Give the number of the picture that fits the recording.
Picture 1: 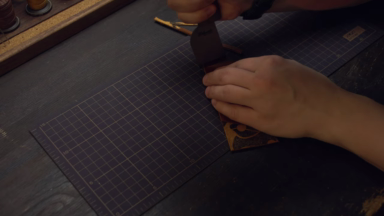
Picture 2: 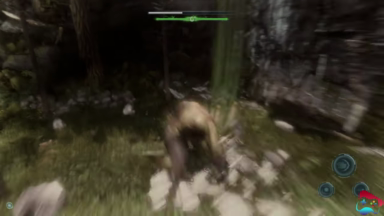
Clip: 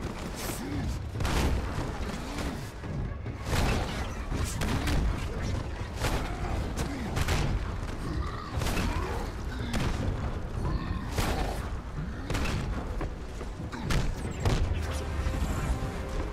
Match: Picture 2